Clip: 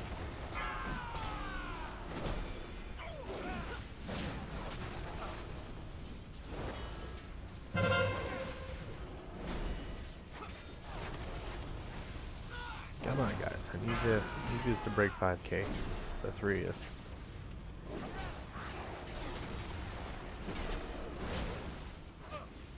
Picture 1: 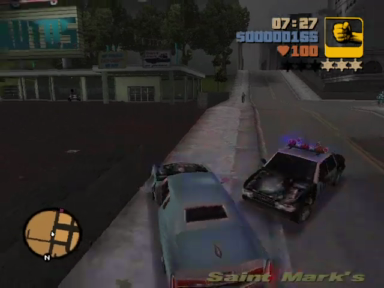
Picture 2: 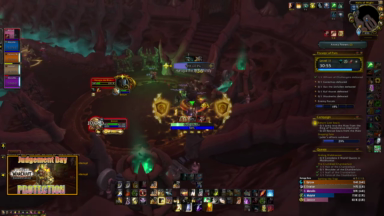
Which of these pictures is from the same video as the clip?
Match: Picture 2